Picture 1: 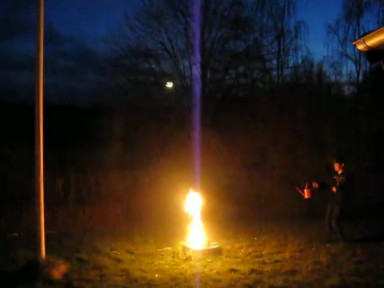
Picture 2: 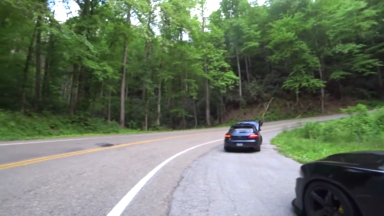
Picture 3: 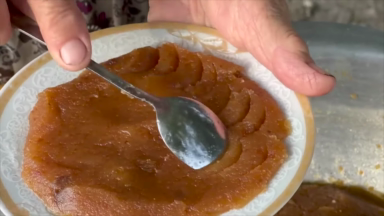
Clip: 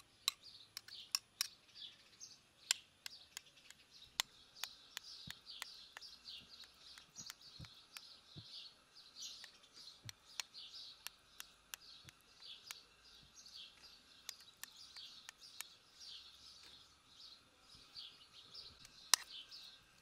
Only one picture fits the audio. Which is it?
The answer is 3